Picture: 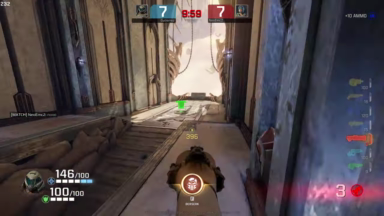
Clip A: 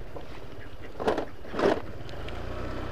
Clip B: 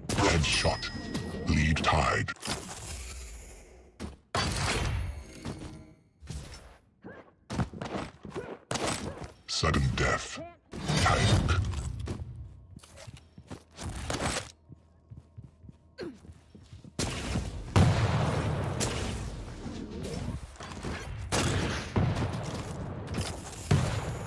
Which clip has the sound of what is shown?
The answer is B